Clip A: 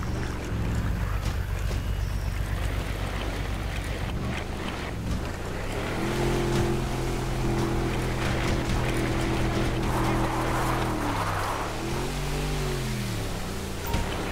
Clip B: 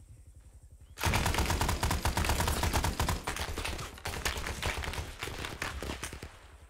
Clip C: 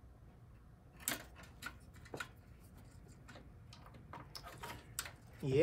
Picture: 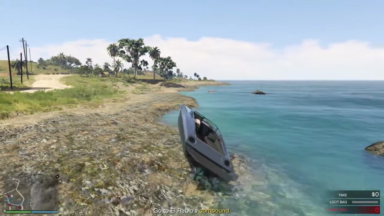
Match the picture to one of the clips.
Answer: A